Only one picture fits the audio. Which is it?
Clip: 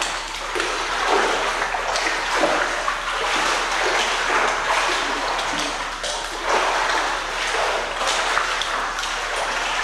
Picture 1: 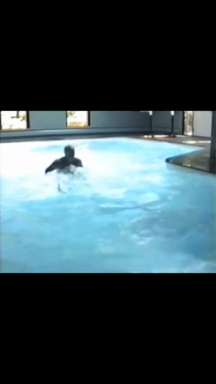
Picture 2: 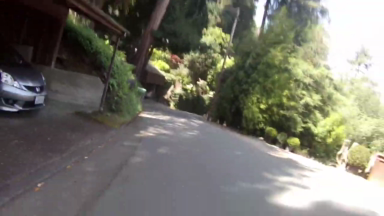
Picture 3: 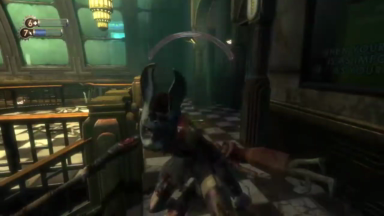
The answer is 1